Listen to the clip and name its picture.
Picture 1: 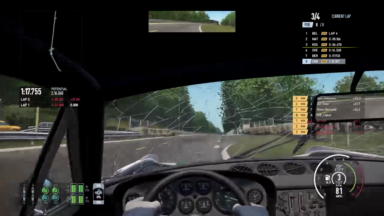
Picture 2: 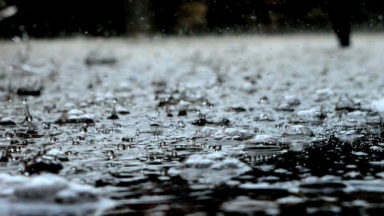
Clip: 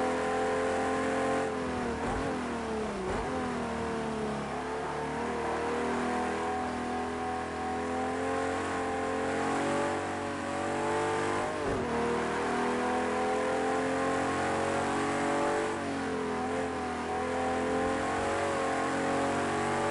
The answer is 1